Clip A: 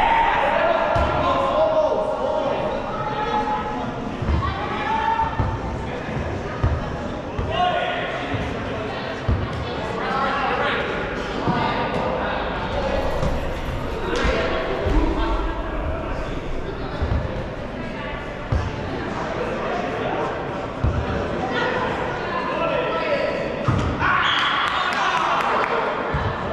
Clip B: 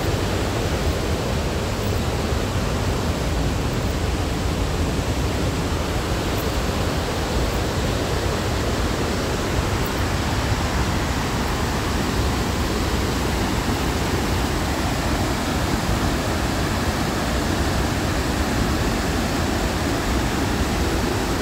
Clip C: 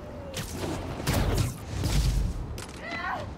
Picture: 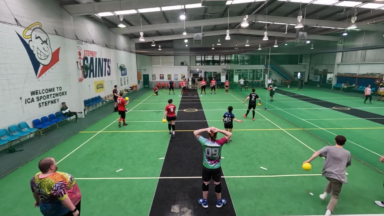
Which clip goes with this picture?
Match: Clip A